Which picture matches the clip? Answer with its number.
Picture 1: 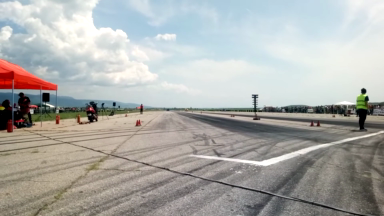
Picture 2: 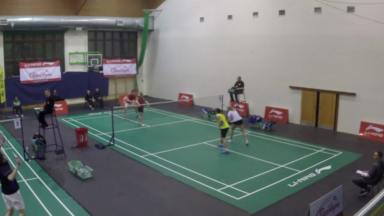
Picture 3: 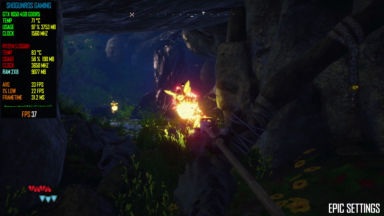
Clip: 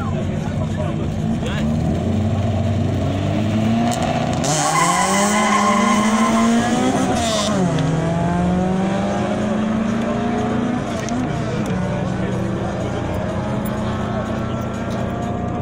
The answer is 1